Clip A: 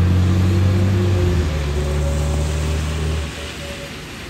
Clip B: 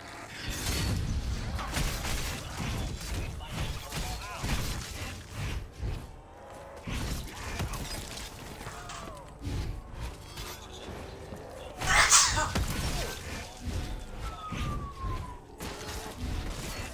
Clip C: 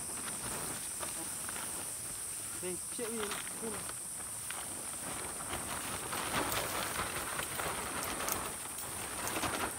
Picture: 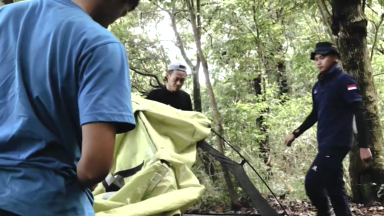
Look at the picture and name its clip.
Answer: C